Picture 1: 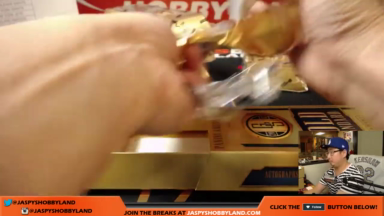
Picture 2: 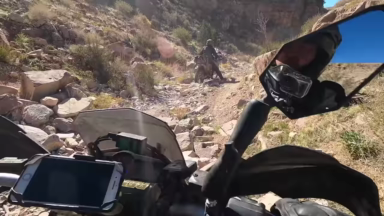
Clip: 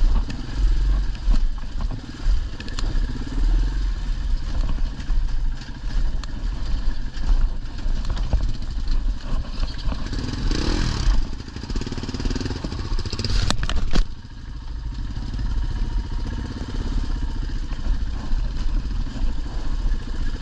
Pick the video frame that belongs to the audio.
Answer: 2